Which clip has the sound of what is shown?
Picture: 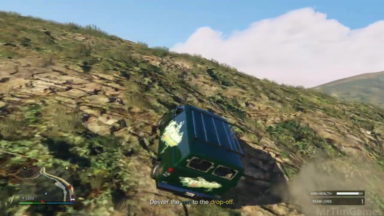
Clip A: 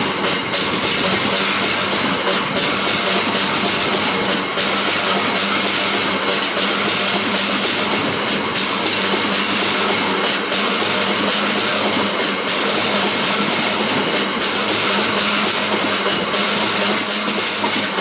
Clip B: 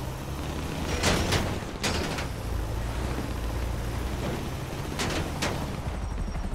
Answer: B